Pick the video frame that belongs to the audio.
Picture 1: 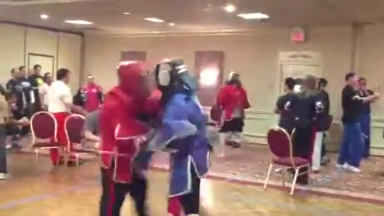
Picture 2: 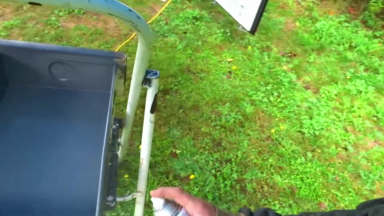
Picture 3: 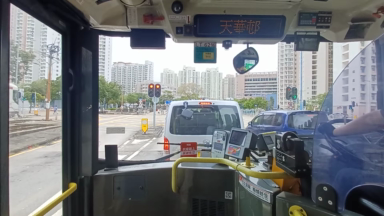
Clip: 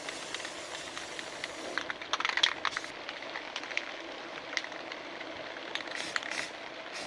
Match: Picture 2